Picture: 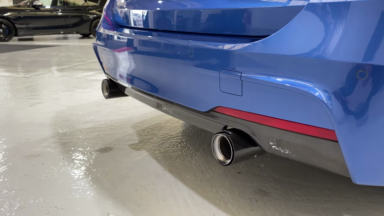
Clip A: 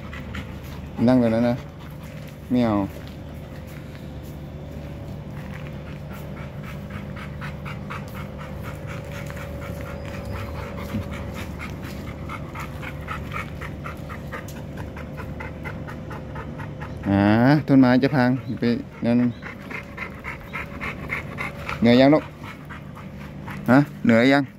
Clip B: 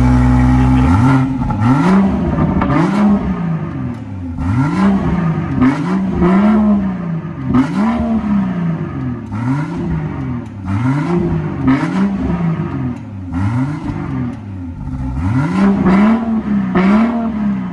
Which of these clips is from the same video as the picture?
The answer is B